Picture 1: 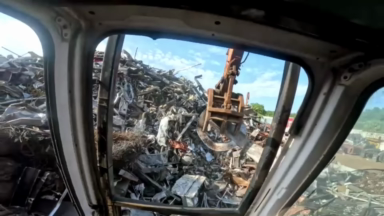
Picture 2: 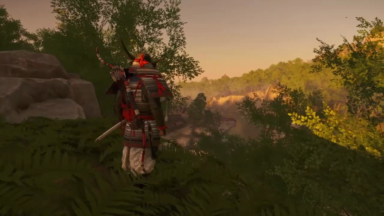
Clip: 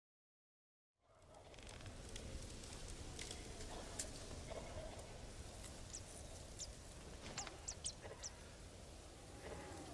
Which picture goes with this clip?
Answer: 2